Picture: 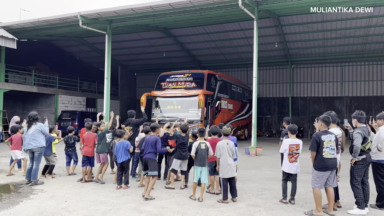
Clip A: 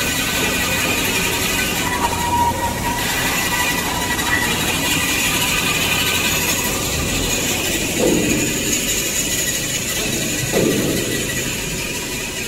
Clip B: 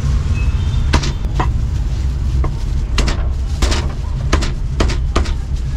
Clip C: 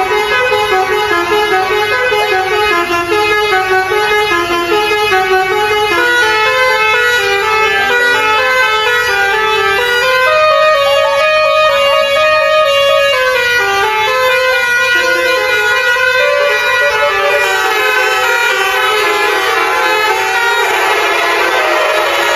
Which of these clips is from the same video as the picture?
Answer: C